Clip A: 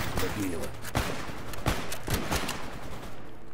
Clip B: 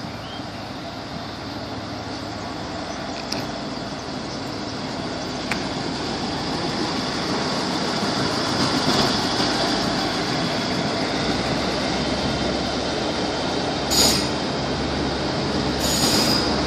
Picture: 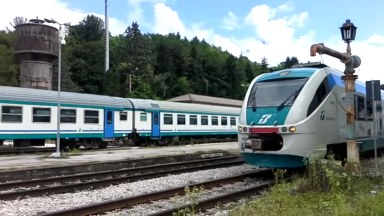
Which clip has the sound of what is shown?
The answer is B